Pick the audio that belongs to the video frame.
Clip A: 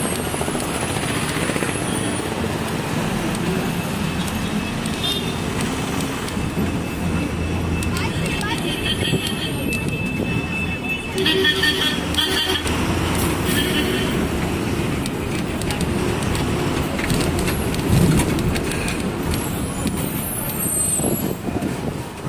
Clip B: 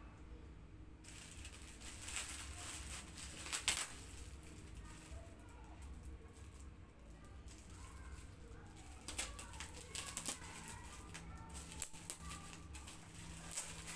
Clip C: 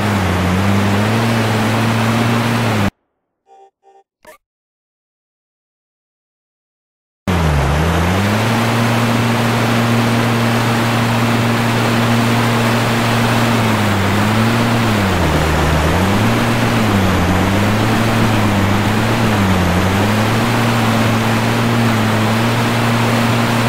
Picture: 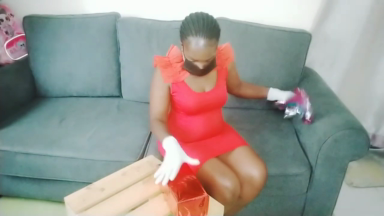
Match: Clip B